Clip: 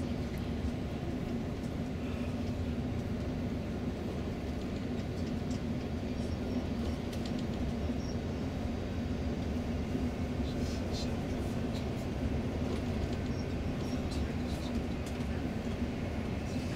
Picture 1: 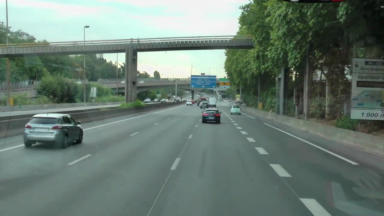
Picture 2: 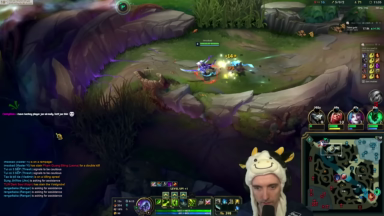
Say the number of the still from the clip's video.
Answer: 1